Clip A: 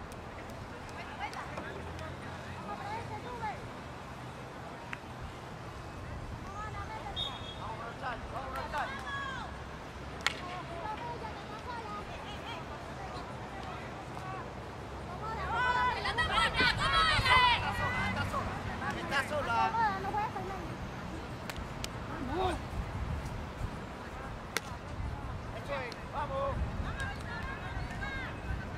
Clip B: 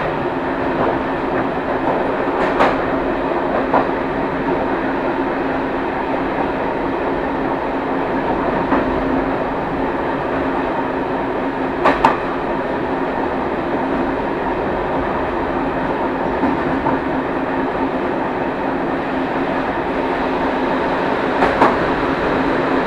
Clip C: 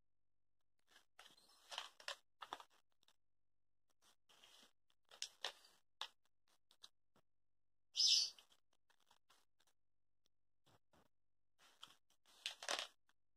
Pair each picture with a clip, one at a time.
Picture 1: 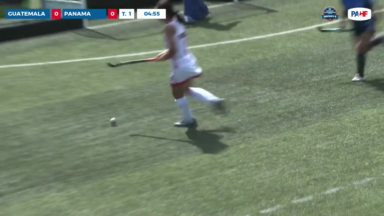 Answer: A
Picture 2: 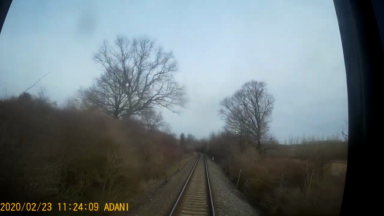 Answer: B